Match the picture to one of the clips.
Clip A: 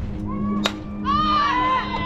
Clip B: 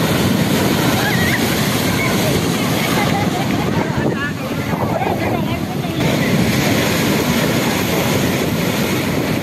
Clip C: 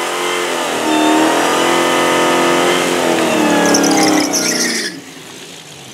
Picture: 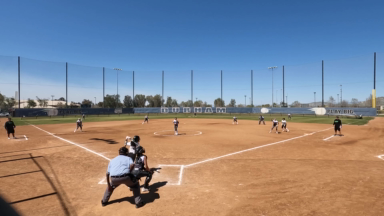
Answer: A